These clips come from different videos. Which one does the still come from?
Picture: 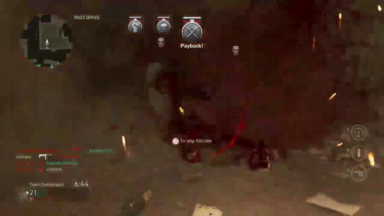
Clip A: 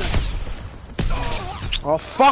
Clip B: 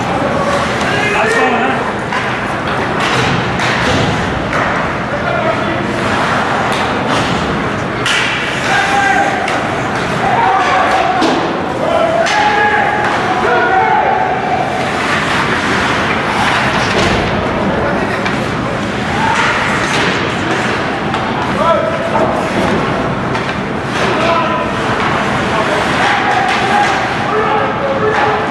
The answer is A